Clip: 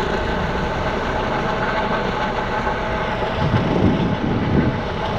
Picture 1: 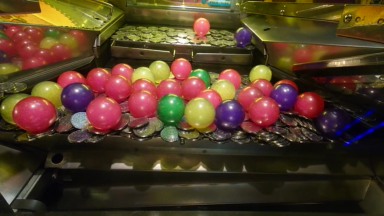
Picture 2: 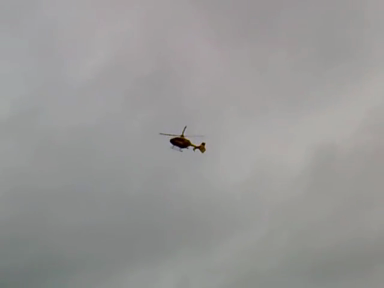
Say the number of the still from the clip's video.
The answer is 2